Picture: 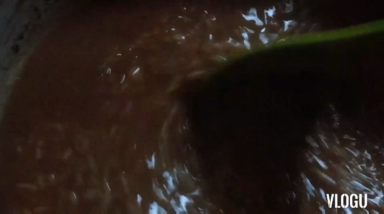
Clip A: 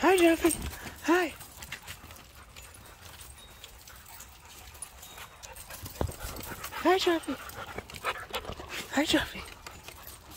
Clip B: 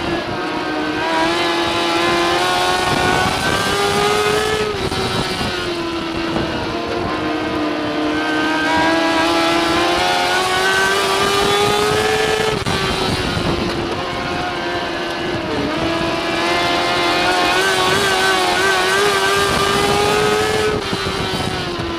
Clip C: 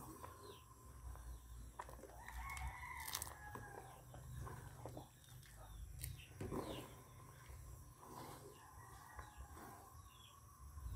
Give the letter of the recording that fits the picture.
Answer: C